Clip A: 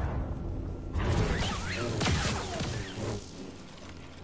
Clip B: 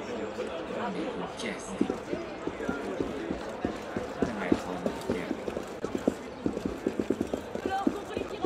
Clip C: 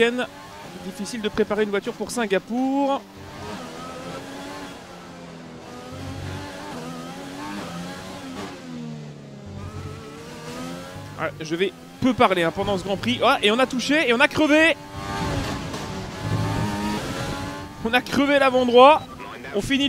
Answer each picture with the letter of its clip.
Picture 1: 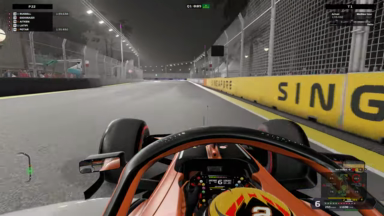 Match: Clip C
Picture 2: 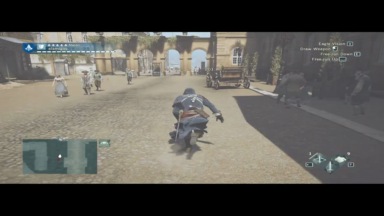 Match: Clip B